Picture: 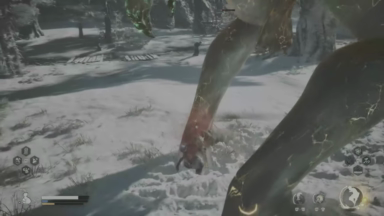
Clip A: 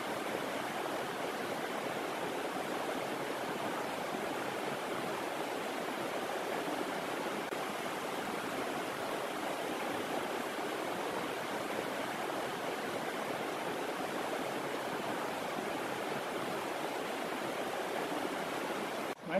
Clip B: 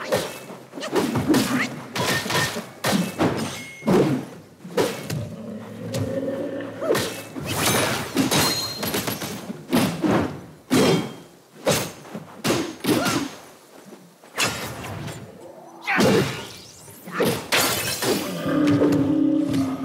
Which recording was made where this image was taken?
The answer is B